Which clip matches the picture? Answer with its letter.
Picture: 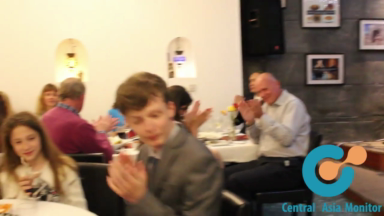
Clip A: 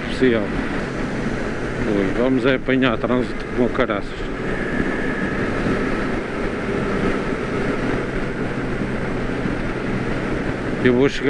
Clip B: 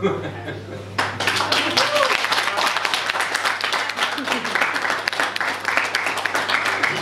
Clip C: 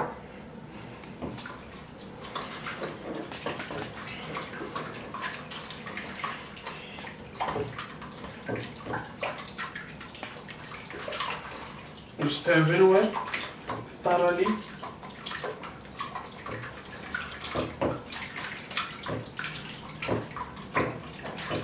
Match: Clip B